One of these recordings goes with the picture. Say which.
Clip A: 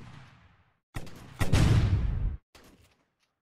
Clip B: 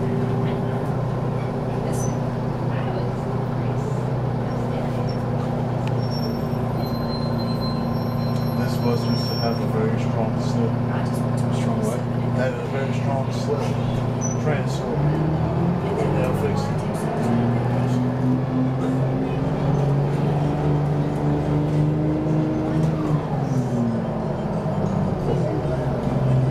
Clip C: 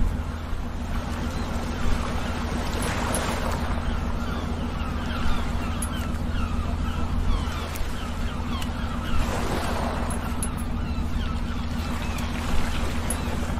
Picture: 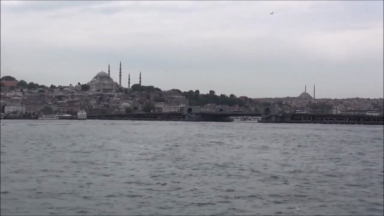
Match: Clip C